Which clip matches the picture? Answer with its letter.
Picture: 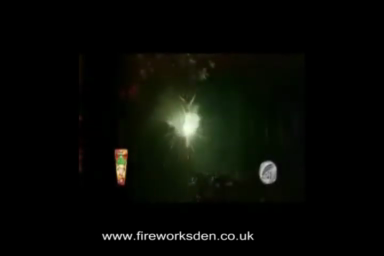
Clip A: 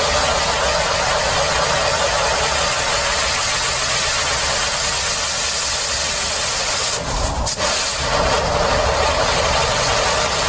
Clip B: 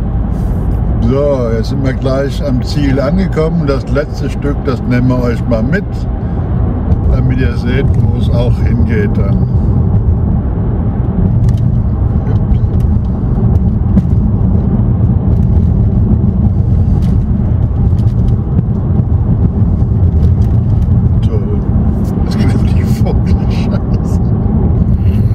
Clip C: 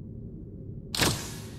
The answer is A